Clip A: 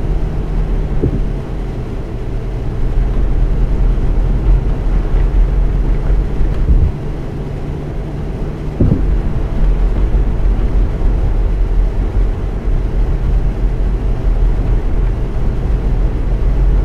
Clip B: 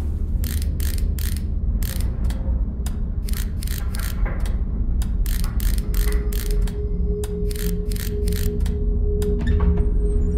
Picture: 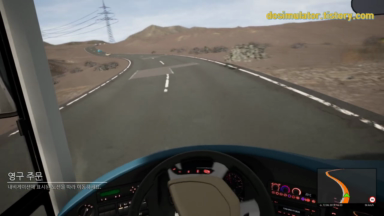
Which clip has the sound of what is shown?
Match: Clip A